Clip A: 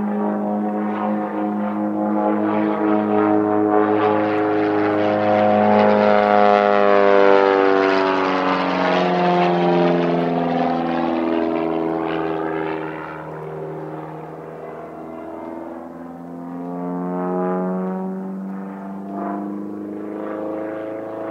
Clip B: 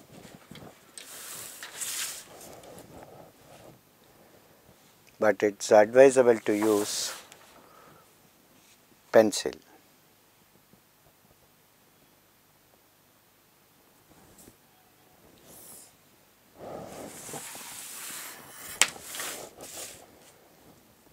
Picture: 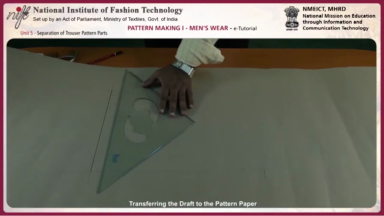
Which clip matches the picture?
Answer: B